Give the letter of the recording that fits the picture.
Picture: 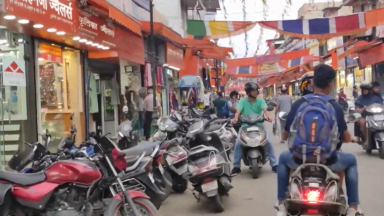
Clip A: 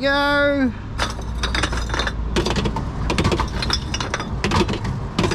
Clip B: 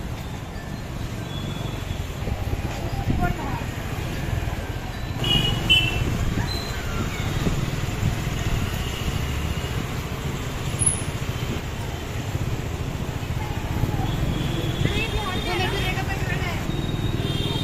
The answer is B